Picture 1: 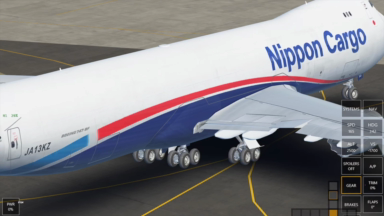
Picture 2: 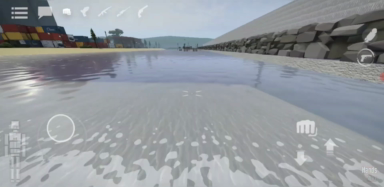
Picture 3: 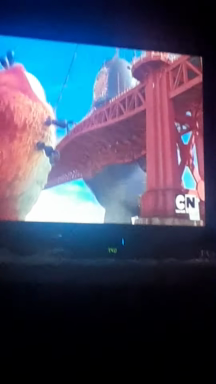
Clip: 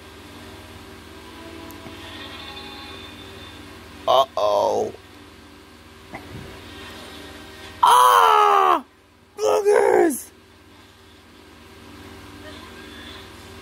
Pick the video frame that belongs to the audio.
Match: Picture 3